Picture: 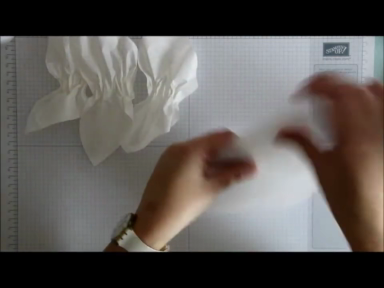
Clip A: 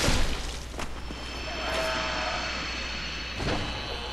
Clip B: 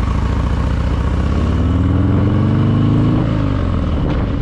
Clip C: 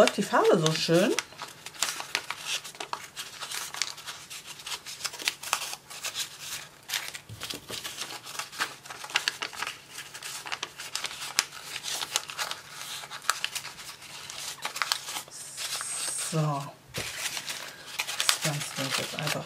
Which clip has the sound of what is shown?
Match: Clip C